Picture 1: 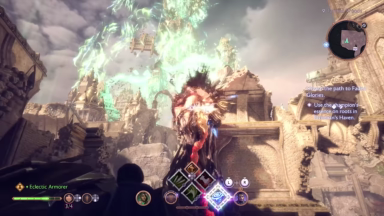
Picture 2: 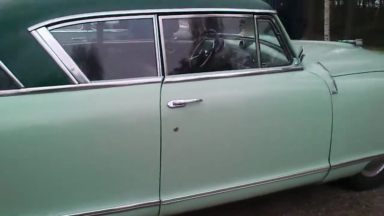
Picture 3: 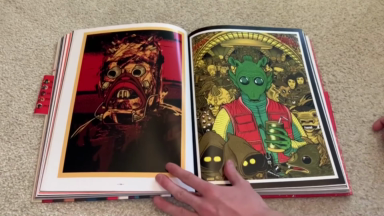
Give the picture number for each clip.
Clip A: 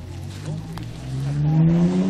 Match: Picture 2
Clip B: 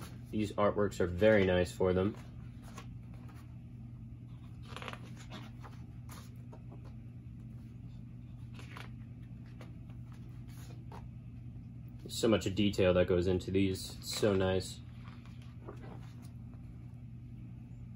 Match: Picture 3